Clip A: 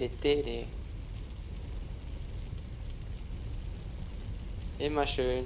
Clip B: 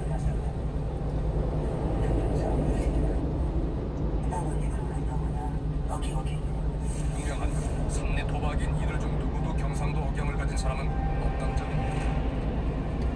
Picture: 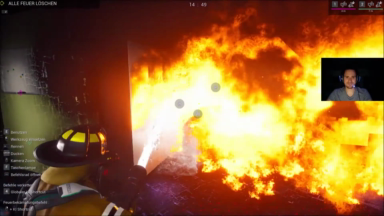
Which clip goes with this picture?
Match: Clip A